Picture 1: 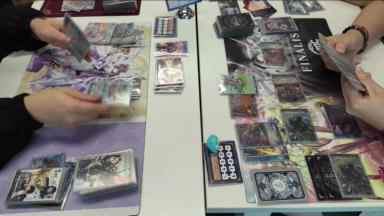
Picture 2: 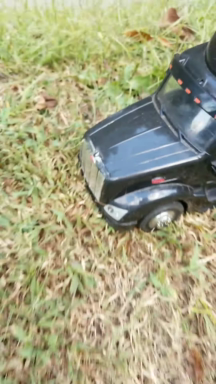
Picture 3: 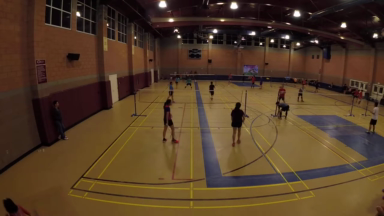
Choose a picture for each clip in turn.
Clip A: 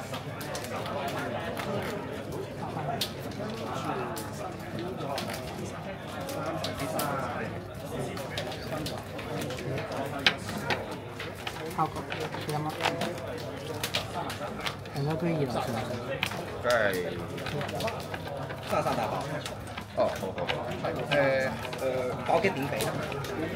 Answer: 1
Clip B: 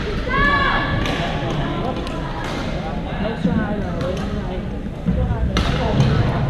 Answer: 3